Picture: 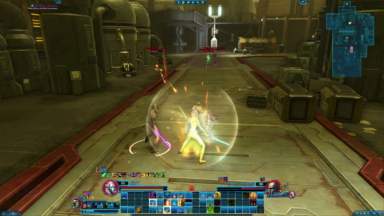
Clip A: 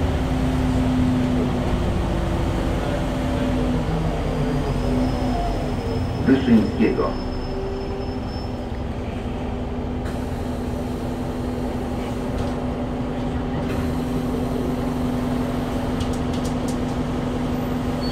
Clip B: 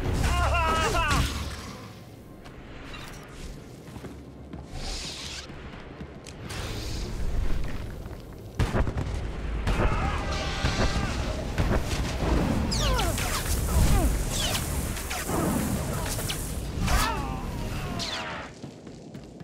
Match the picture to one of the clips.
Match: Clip B